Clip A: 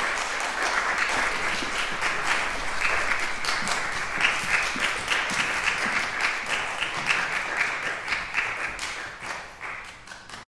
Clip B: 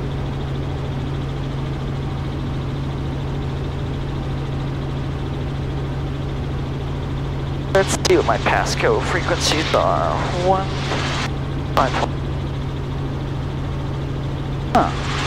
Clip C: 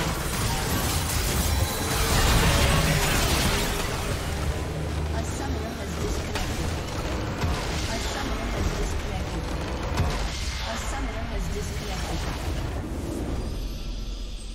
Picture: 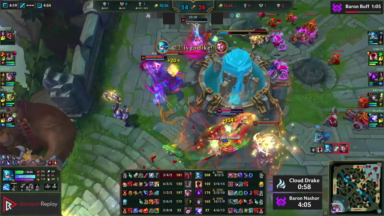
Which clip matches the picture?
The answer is C